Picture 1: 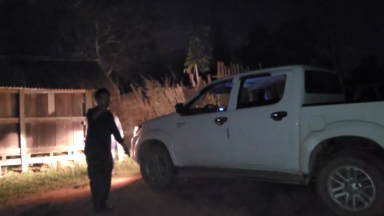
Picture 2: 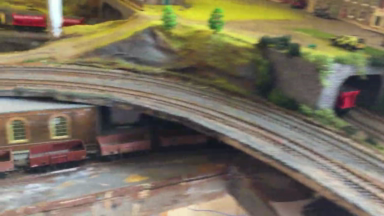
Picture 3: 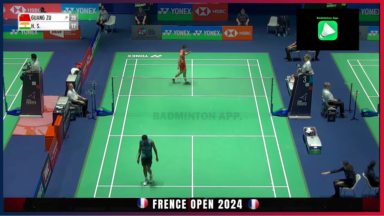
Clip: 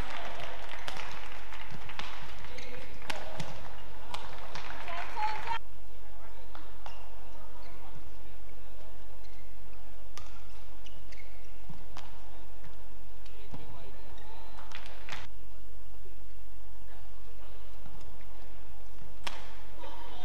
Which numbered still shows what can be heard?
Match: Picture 3